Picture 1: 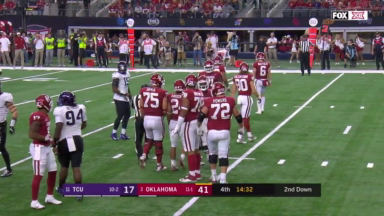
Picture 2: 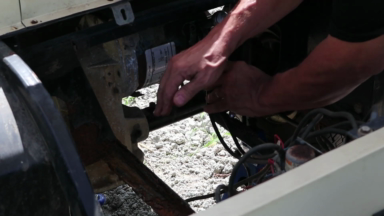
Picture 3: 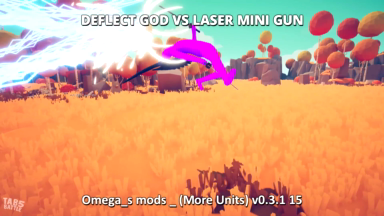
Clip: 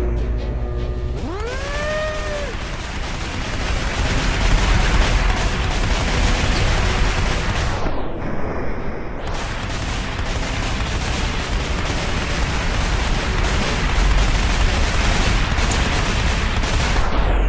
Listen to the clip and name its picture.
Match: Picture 3